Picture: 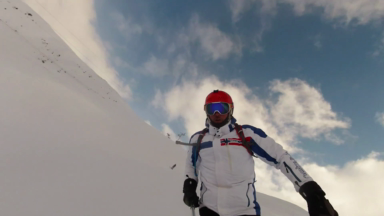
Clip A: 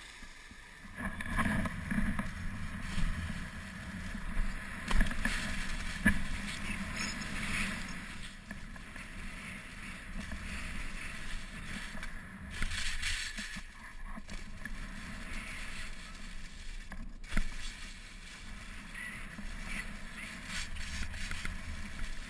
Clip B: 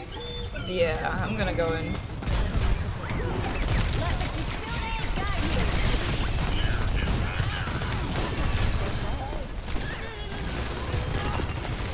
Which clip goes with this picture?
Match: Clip A